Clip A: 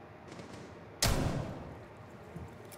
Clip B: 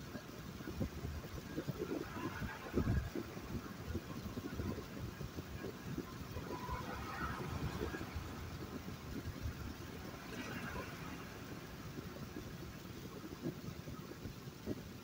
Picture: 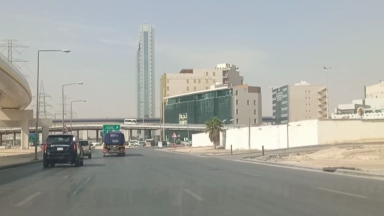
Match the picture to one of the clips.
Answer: B